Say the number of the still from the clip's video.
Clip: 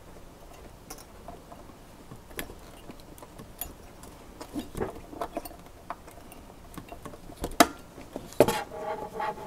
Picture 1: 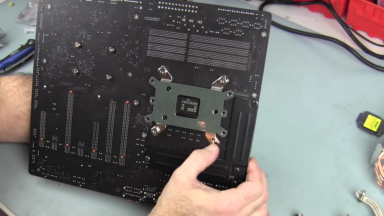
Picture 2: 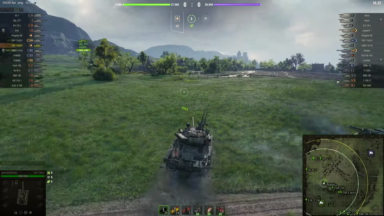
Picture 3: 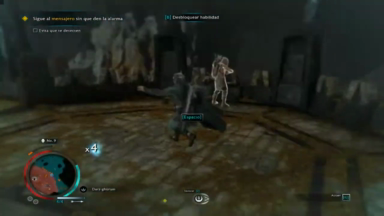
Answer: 1